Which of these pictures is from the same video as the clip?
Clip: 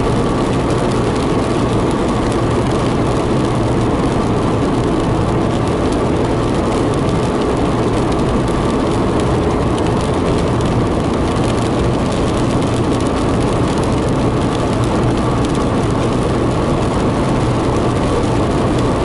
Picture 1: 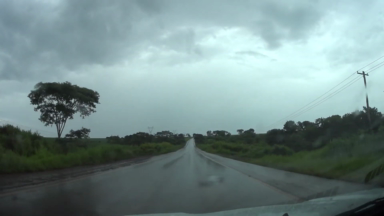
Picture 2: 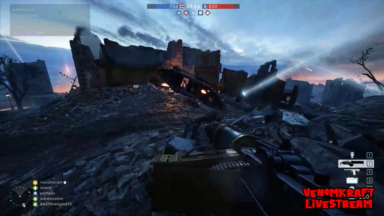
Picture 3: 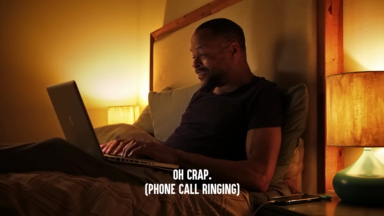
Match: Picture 1